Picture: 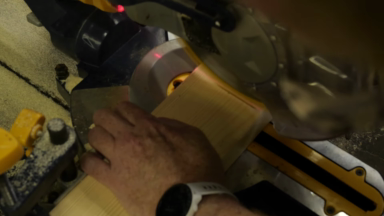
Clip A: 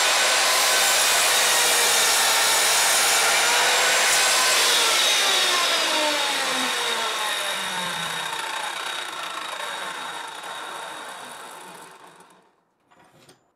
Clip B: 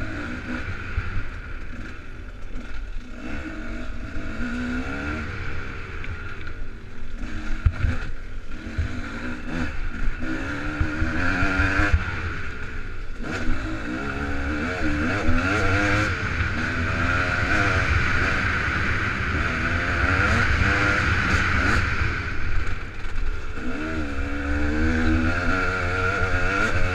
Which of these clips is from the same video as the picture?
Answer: A